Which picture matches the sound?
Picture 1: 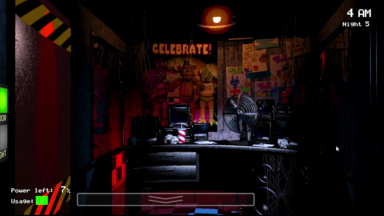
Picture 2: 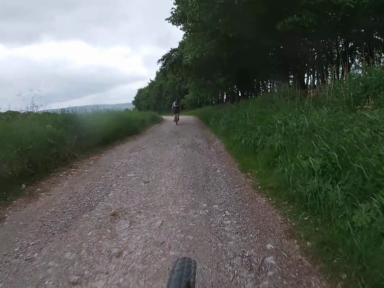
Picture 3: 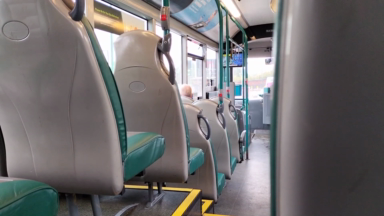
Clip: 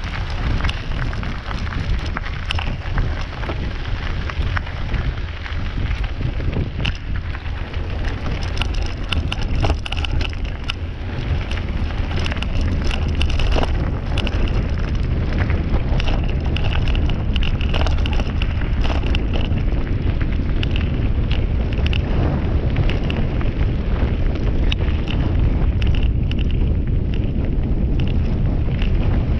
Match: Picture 2